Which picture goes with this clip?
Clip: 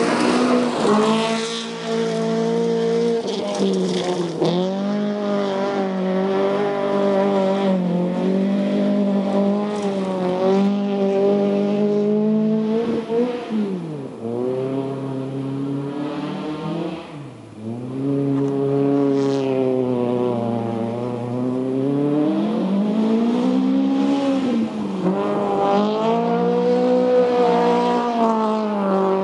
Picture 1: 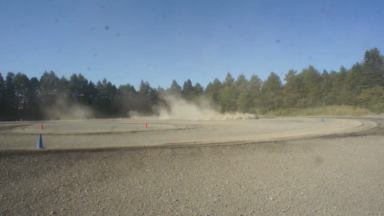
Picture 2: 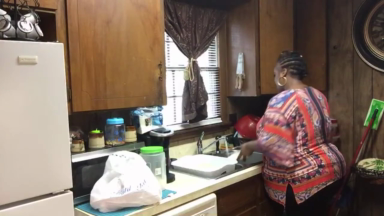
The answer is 1